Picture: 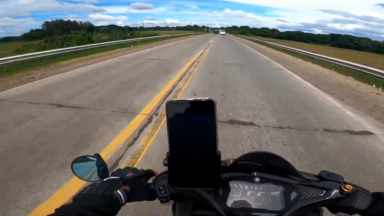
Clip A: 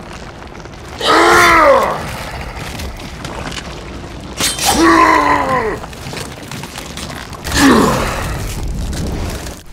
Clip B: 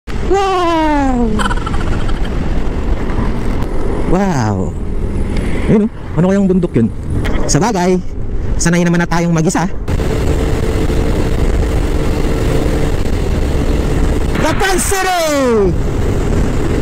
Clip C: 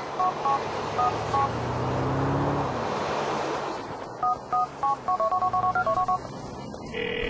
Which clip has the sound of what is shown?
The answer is B